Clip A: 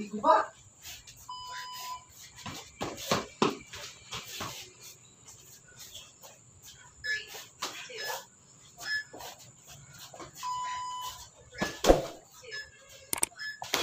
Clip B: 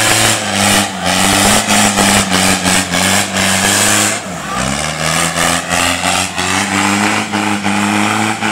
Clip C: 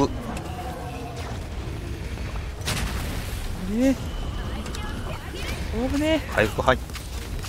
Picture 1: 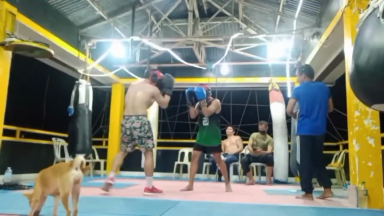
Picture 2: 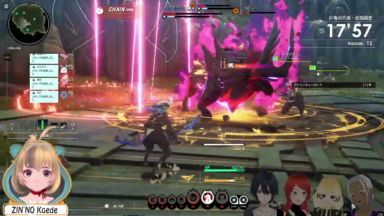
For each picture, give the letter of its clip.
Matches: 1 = A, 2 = C